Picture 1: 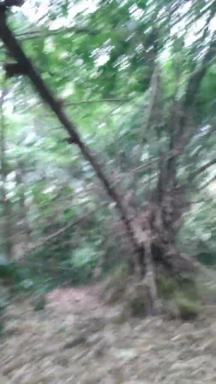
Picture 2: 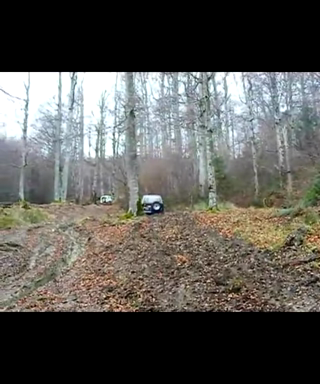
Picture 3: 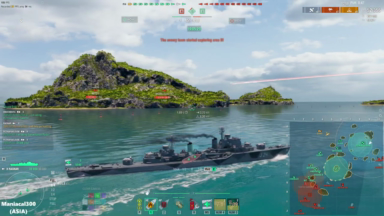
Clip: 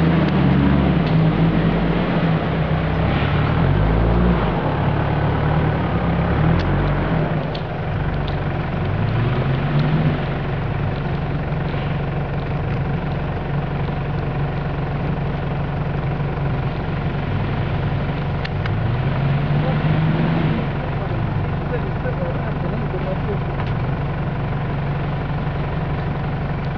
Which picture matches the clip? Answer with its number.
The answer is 2